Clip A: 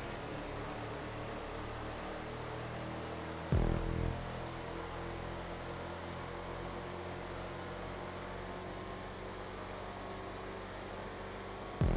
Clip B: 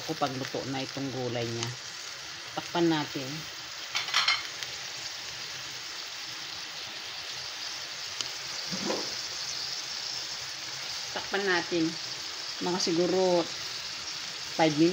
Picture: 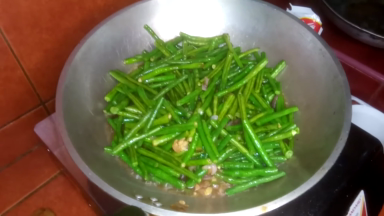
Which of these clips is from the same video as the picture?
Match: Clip B